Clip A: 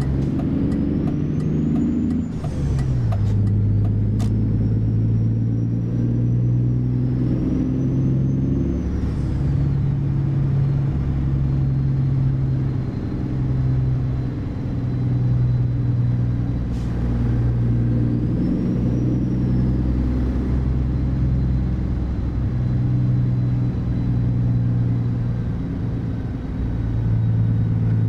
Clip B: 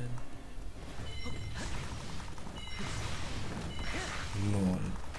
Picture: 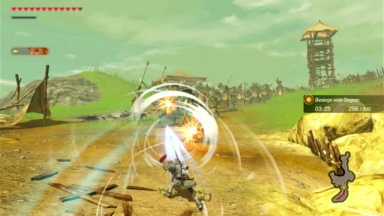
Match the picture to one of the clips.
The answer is B